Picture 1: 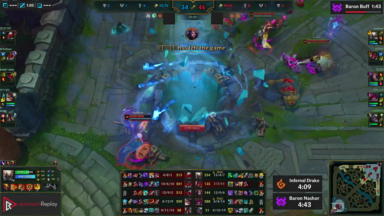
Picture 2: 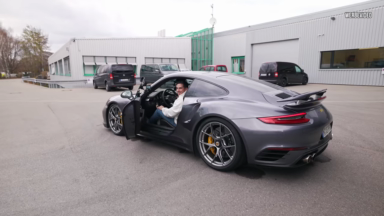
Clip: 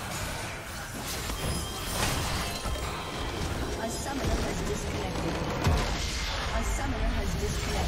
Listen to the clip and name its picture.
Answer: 1